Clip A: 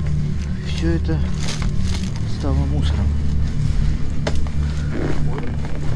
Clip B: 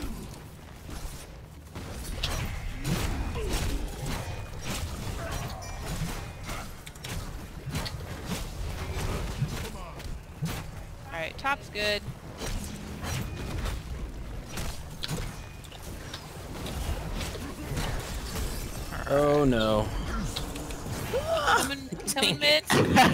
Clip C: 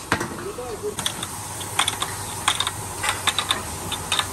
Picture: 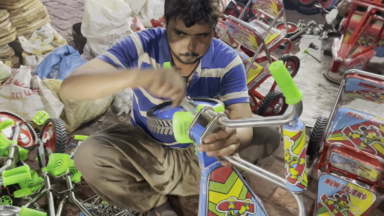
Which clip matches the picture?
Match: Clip C